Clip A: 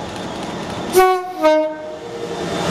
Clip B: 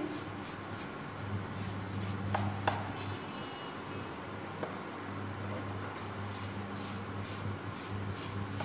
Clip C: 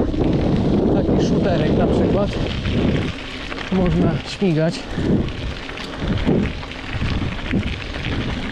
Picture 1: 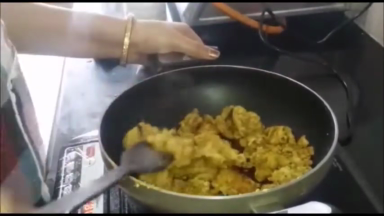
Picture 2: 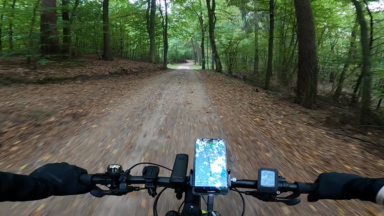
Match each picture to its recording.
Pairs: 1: B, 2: C